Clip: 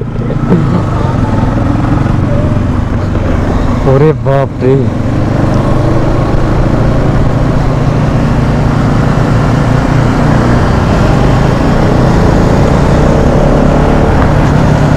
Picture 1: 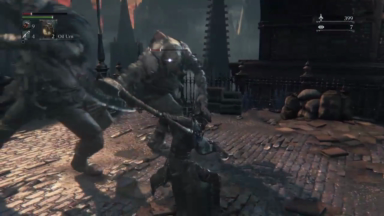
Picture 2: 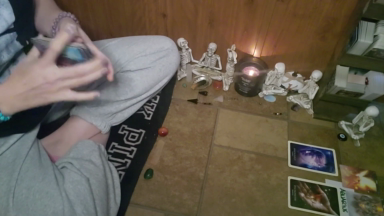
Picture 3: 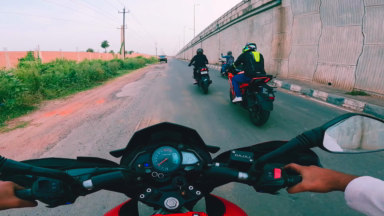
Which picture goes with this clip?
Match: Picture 3